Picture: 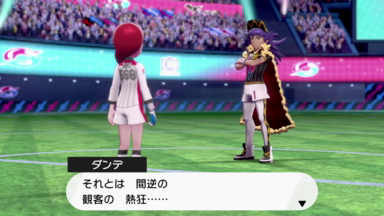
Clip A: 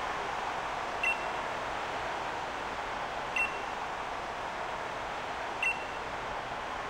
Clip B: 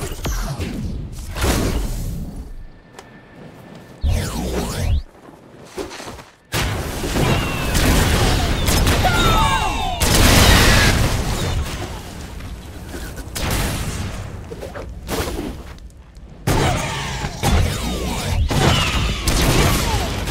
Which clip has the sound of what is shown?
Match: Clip A